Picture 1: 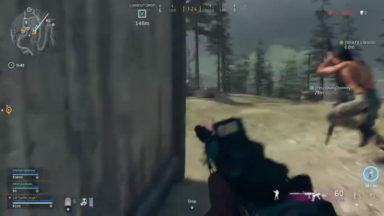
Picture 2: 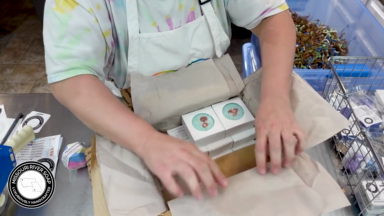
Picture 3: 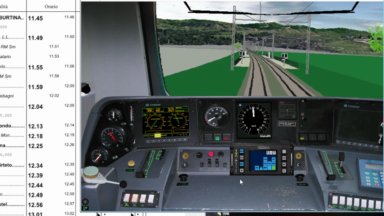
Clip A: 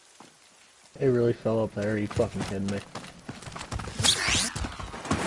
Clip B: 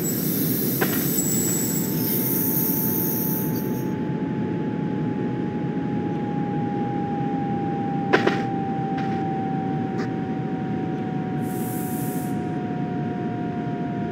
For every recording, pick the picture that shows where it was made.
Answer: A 1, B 3